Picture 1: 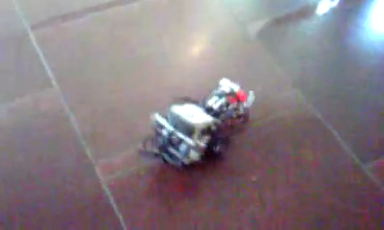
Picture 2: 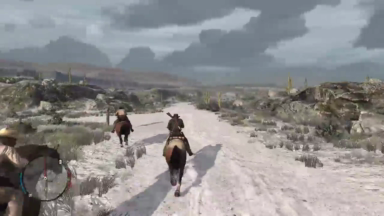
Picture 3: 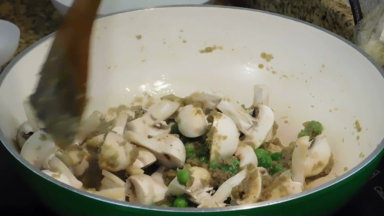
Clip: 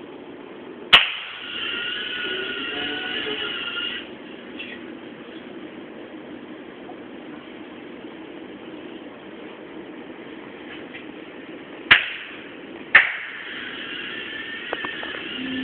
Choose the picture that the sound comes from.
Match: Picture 1